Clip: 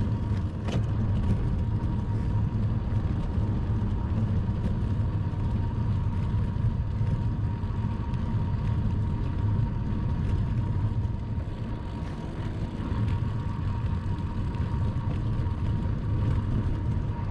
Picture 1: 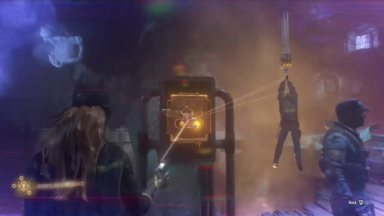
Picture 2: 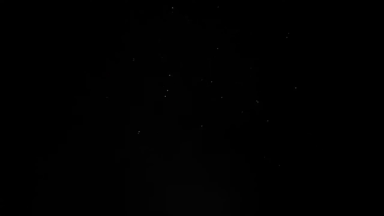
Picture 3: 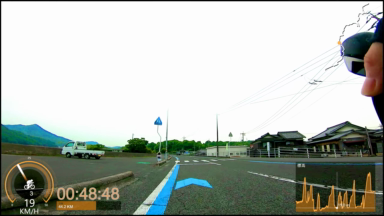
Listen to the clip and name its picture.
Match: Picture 3